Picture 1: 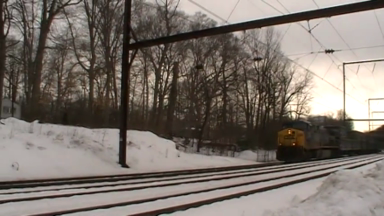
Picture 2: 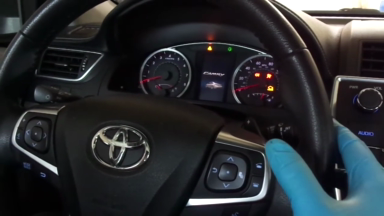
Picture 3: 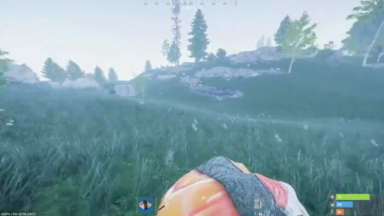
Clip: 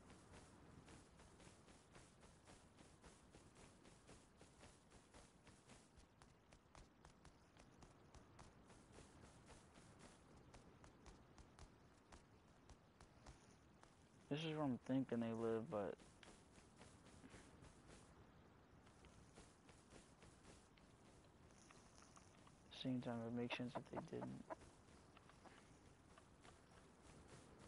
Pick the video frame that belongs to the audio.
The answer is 3